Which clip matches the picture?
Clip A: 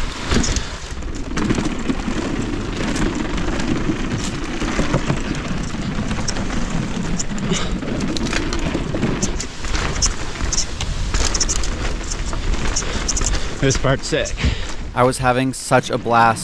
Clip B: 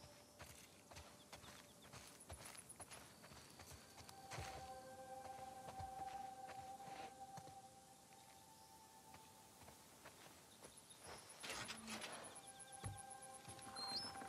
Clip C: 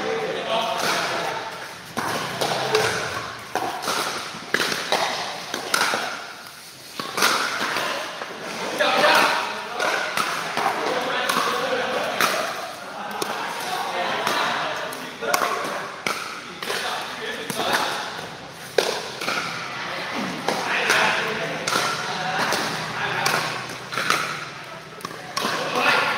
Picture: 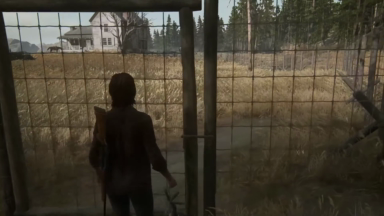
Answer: B